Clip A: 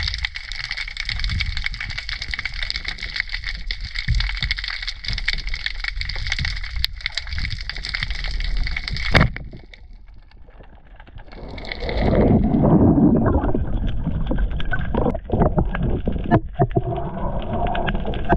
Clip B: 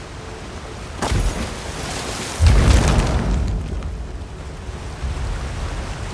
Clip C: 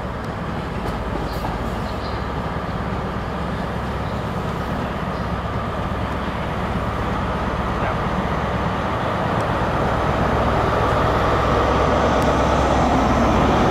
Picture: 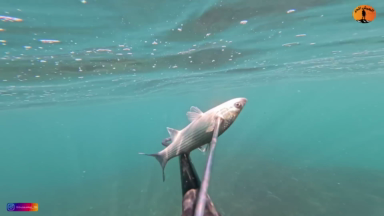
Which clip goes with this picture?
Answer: A